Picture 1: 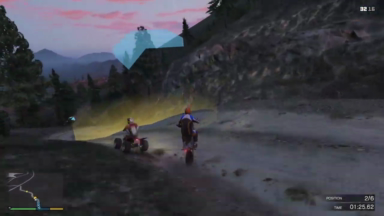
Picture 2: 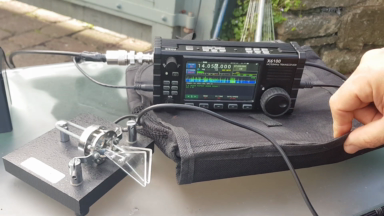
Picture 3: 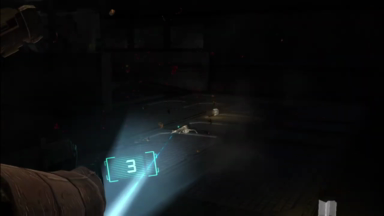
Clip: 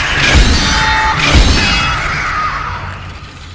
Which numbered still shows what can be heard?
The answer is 3